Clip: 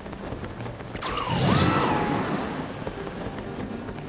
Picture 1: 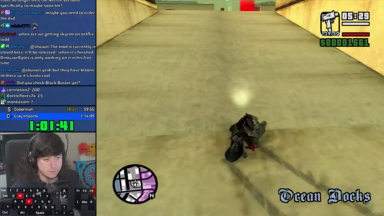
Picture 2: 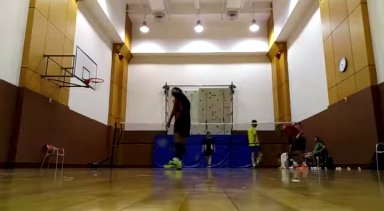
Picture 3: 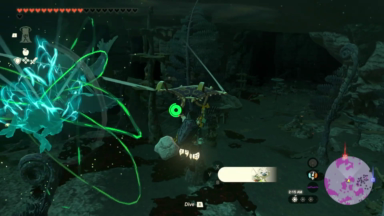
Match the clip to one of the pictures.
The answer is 3